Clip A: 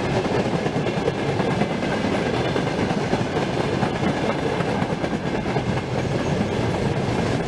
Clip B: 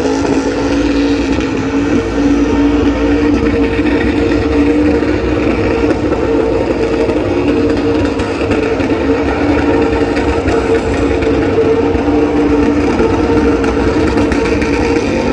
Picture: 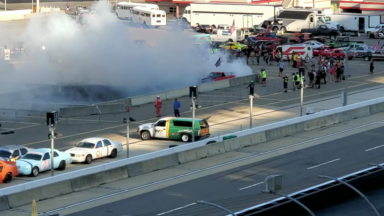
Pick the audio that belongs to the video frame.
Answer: B